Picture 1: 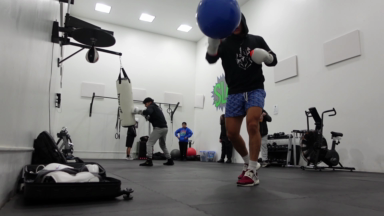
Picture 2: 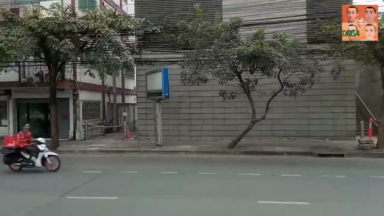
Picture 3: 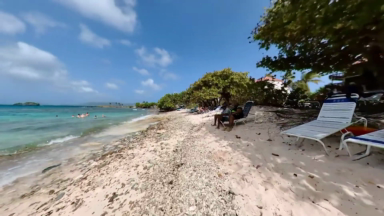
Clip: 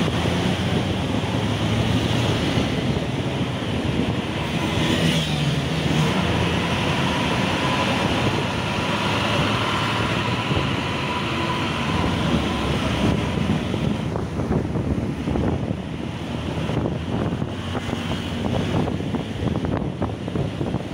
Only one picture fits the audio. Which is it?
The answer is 2